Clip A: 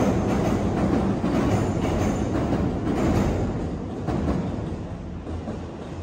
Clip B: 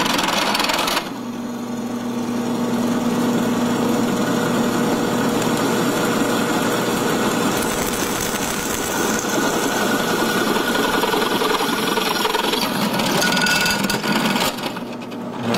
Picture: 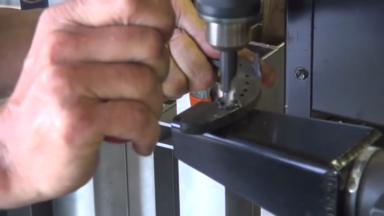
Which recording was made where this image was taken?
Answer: B